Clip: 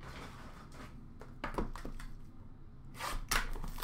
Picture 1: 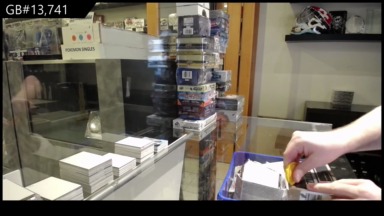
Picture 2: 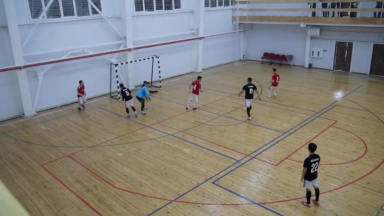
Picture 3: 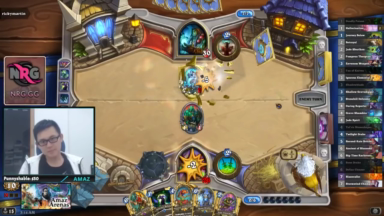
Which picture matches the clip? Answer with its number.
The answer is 1